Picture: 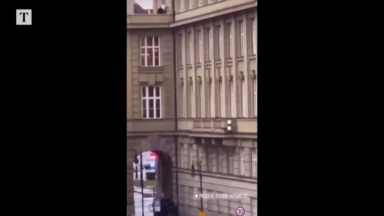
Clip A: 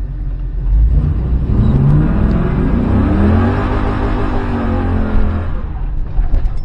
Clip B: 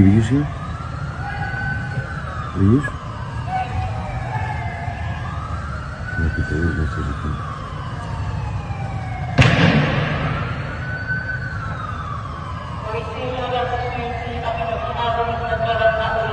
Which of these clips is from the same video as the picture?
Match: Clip B